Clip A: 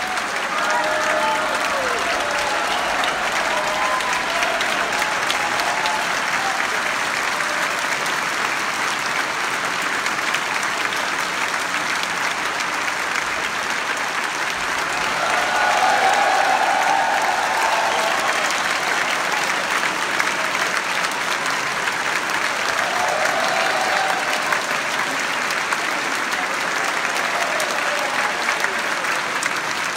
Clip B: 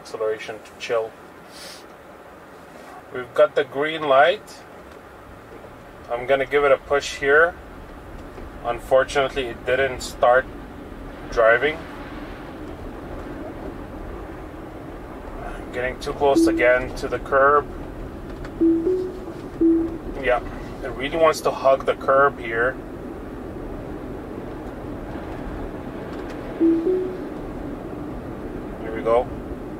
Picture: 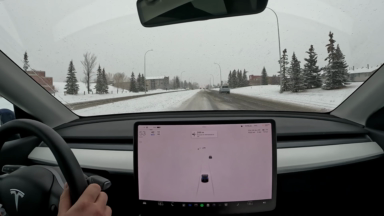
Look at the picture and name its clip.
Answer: B